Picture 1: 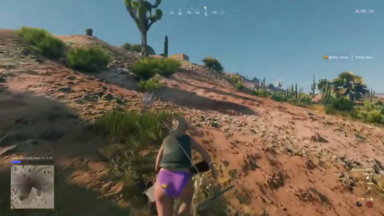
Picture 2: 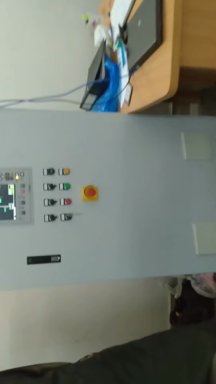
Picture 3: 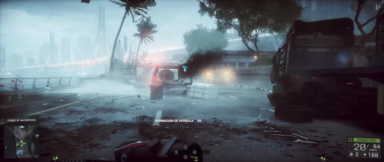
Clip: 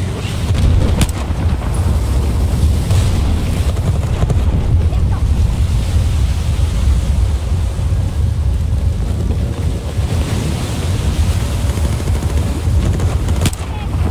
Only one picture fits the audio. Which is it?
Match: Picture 3